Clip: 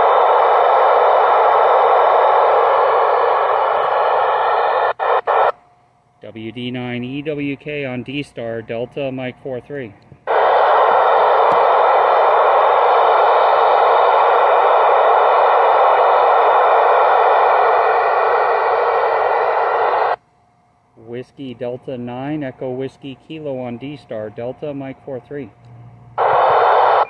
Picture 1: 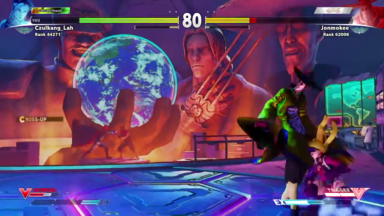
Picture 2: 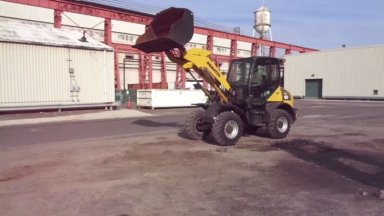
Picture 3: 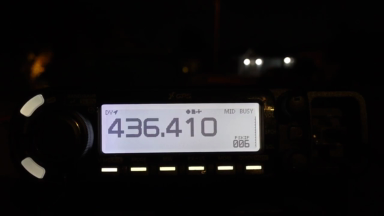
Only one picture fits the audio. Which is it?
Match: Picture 3